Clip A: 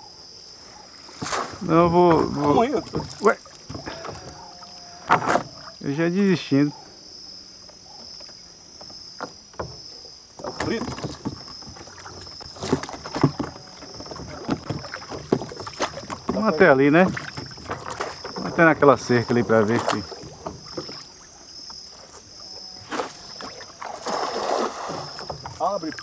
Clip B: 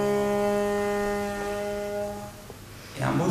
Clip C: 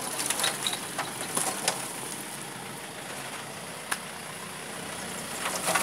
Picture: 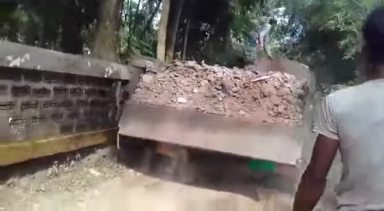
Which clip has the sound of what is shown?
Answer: C